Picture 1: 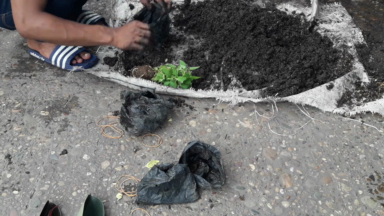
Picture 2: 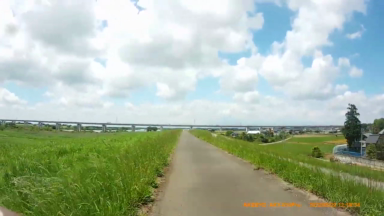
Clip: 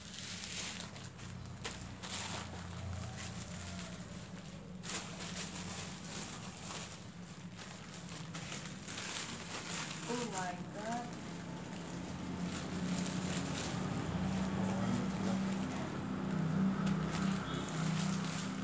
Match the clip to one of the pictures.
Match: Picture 1